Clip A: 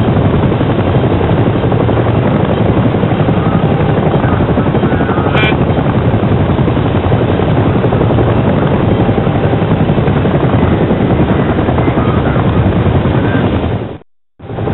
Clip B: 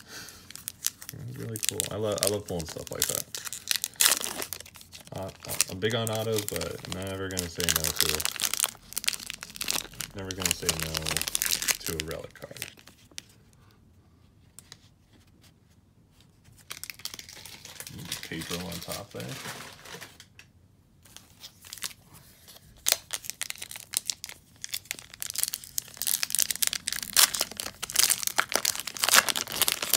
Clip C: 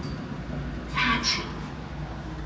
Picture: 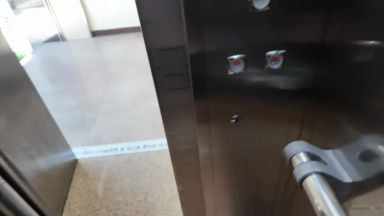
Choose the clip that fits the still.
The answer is C